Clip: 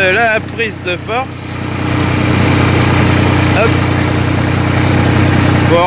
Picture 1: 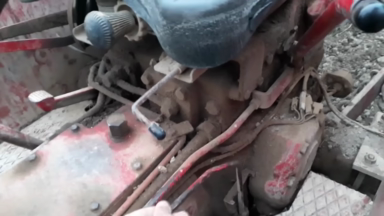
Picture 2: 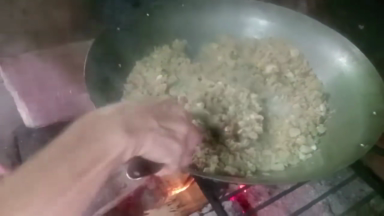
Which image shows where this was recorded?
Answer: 1